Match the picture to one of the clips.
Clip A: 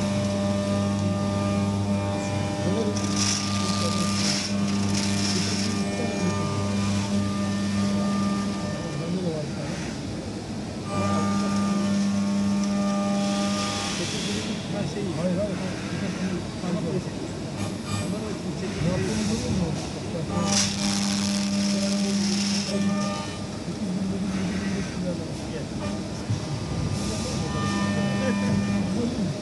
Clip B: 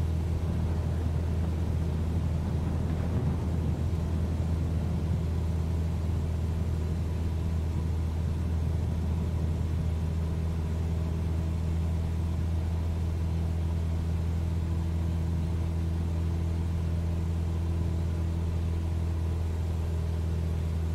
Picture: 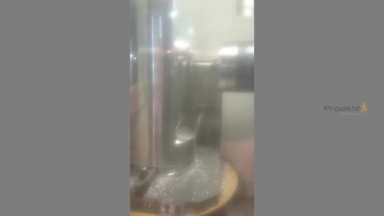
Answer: A